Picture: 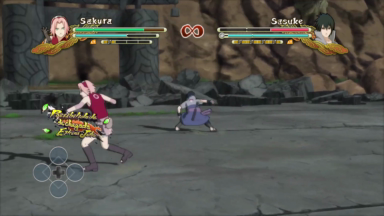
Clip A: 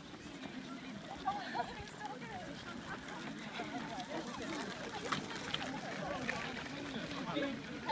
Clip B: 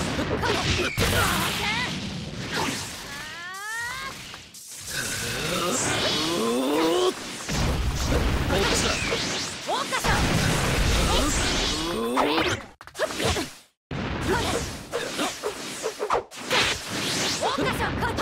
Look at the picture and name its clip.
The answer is B